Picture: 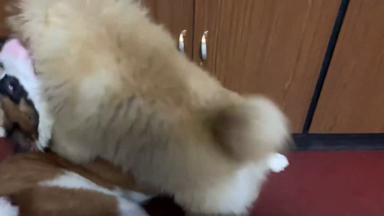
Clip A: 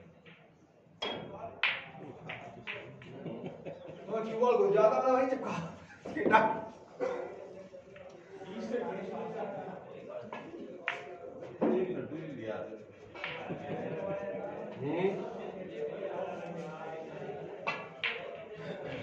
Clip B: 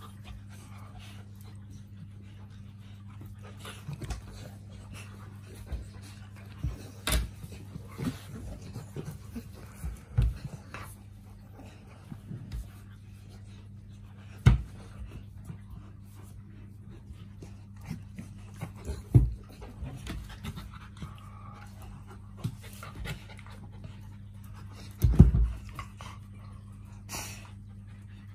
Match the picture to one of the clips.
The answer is B